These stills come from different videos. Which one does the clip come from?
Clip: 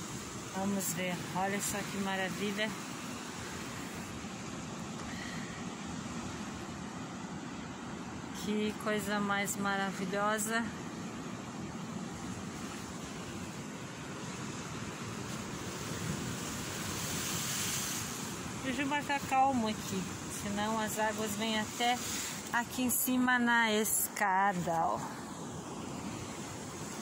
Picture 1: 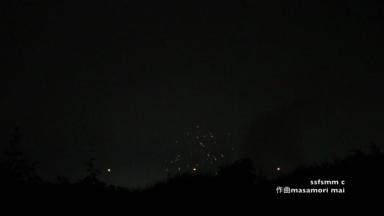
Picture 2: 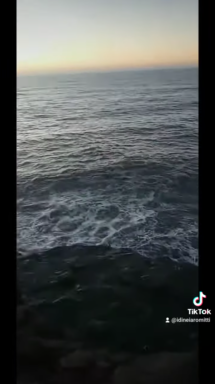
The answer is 2